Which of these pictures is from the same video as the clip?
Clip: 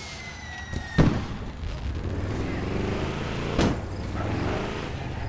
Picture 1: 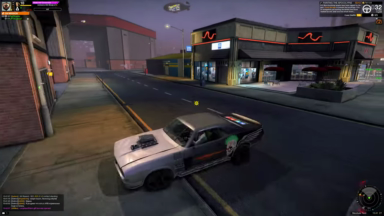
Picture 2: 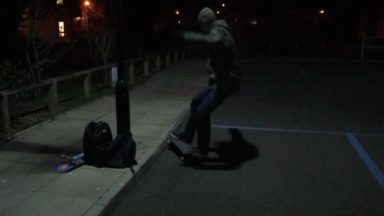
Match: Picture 1